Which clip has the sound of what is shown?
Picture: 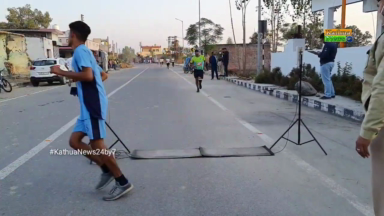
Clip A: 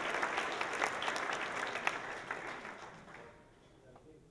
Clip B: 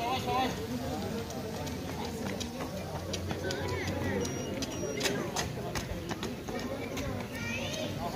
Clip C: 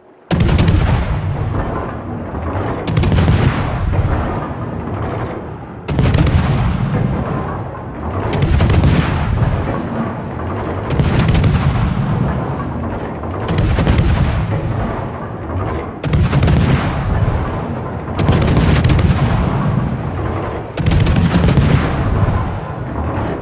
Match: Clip B